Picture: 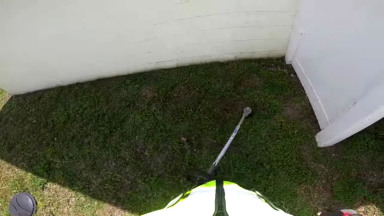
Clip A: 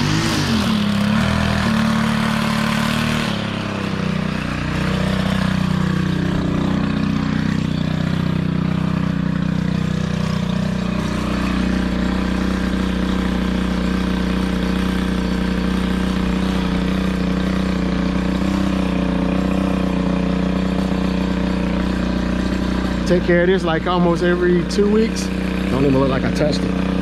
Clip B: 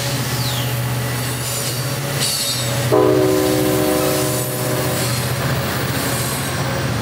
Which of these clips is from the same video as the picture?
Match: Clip A